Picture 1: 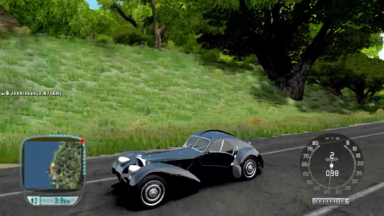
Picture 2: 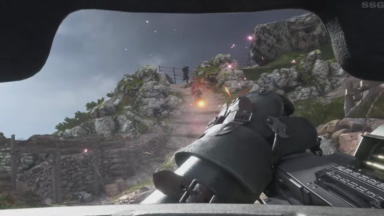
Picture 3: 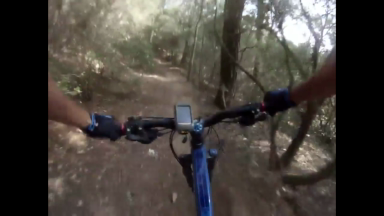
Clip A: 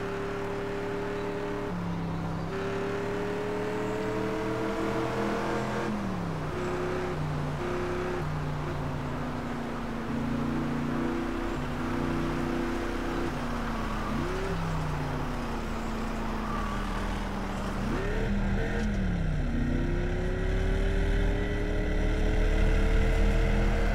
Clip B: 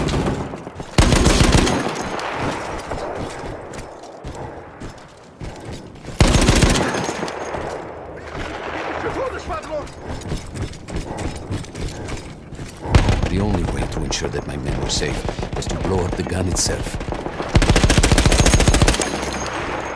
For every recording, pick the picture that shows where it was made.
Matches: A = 1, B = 2